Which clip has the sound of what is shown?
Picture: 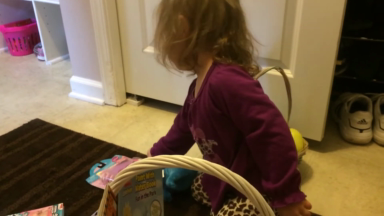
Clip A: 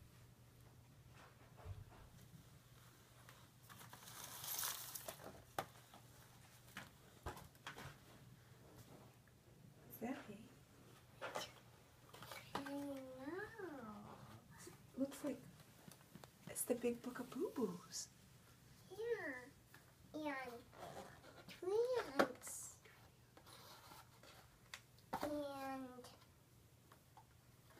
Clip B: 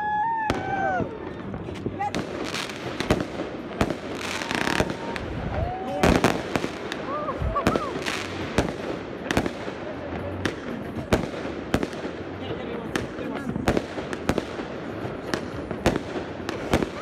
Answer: A